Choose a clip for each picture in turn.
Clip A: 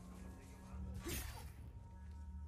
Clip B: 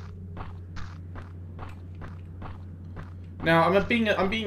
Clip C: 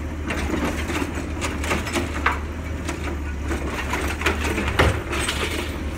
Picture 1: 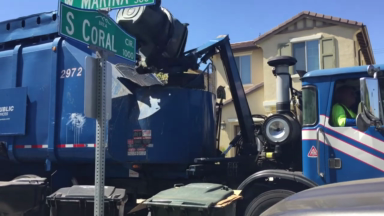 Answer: C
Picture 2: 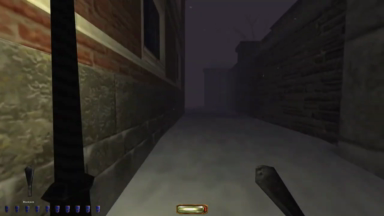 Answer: B